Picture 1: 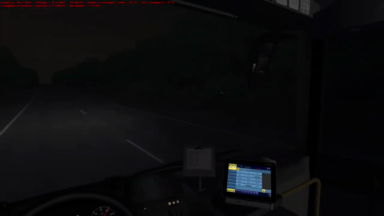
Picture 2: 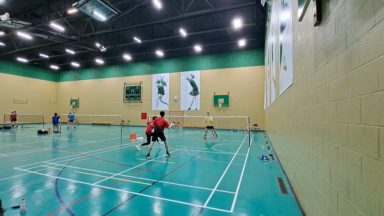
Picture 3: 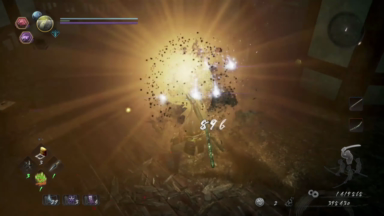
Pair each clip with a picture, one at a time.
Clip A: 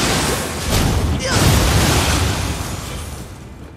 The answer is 3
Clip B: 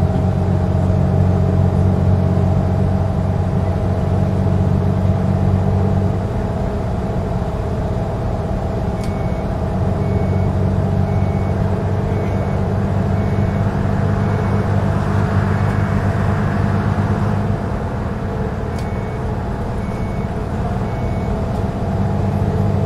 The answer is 1